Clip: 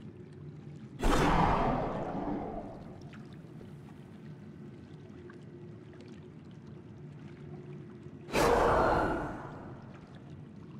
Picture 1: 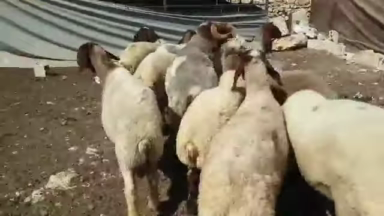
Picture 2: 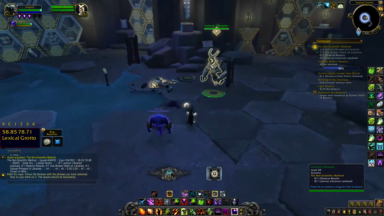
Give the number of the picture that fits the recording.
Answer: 2